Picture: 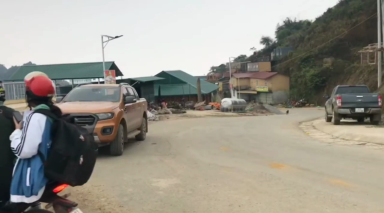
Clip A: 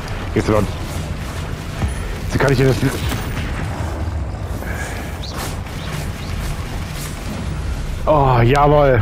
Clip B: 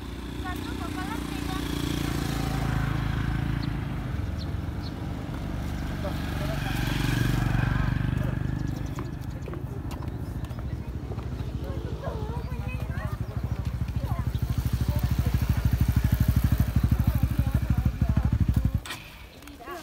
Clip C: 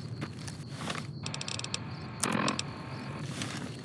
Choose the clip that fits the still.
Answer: B